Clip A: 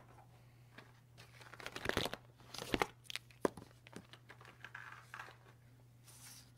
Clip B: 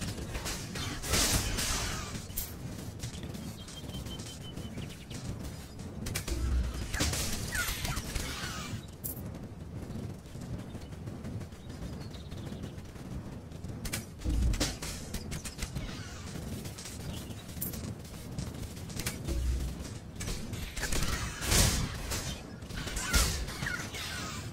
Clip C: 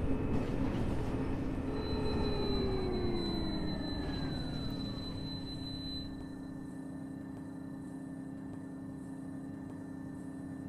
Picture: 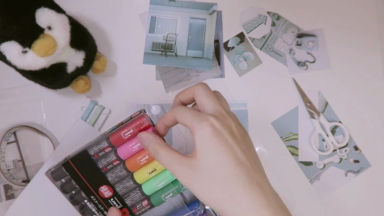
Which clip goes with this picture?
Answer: A